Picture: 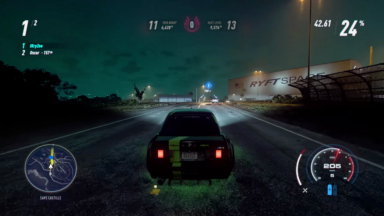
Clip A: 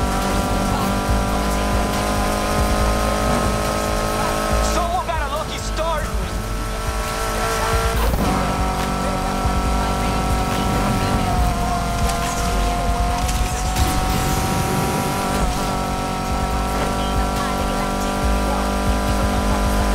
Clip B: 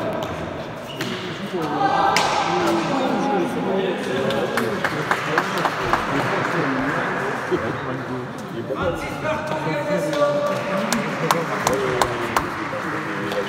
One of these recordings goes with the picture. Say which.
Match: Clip A